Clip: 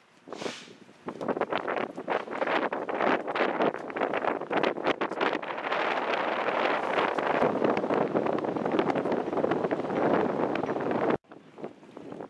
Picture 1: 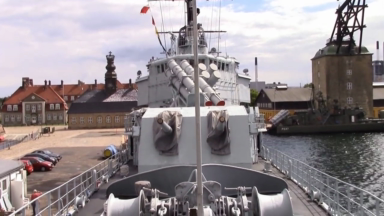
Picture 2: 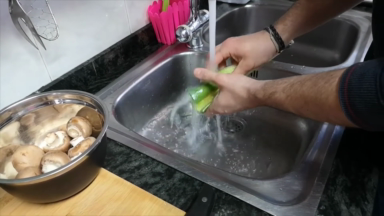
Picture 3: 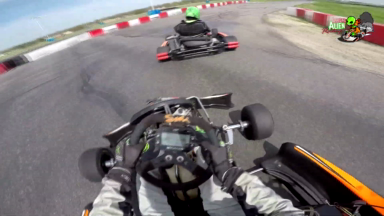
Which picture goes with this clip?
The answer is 1